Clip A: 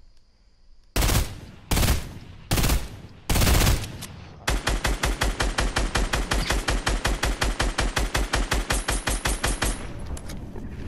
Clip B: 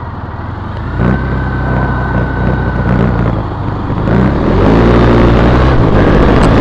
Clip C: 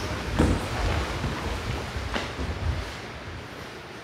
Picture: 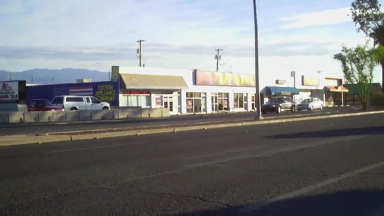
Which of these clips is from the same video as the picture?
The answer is B